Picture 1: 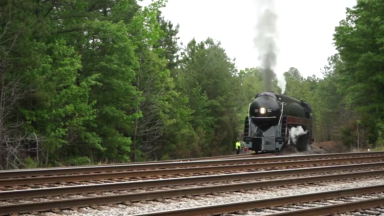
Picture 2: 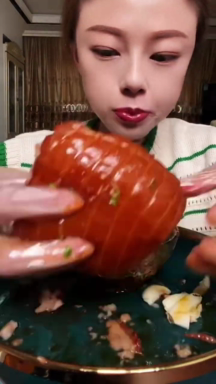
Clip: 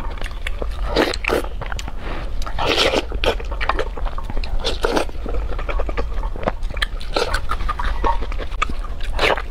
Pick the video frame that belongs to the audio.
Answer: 2